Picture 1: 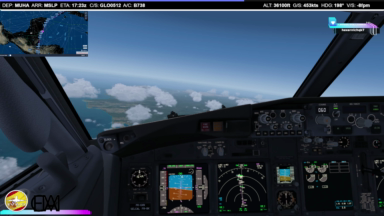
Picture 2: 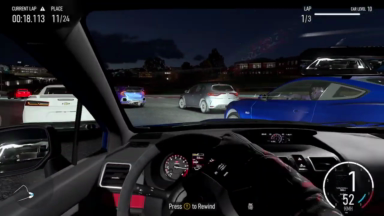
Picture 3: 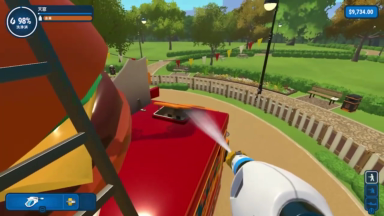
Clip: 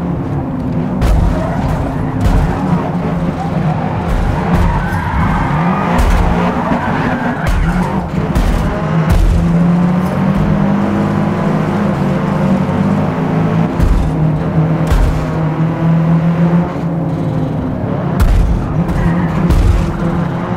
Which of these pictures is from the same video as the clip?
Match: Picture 2